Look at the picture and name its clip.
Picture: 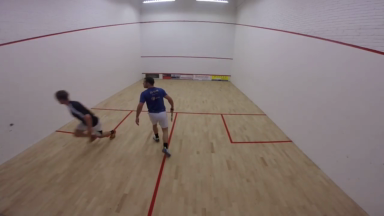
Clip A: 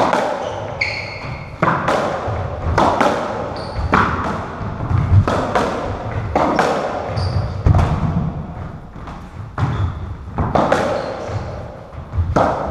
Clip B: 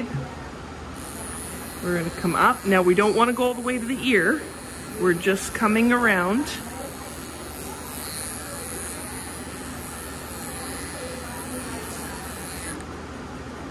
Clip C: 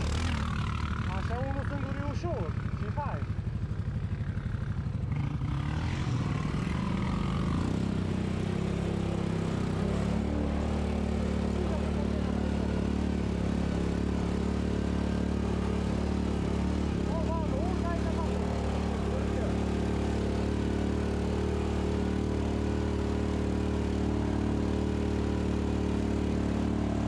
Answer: A